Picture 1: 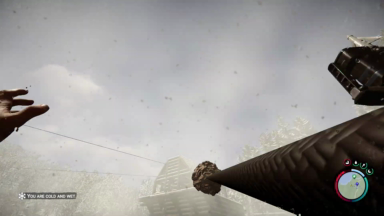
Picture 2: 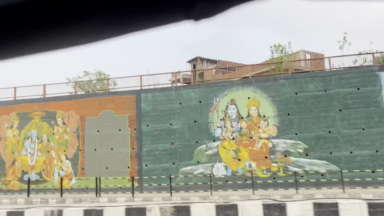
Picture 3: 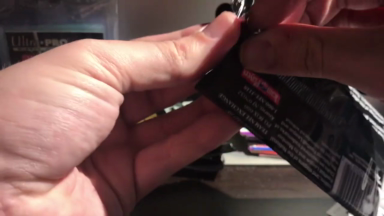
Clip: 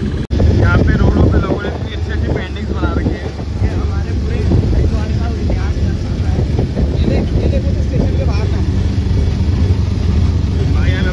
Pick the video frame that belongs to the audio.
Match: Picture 2